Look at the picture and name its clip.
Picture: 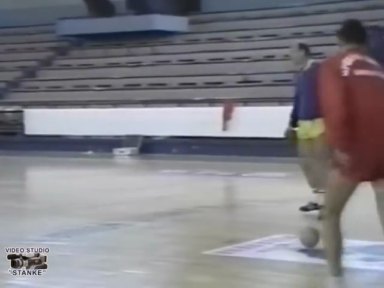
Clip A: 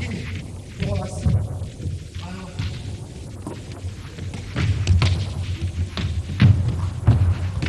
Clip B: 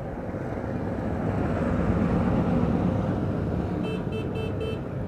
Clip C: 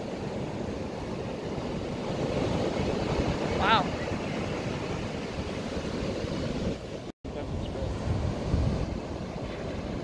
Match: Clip A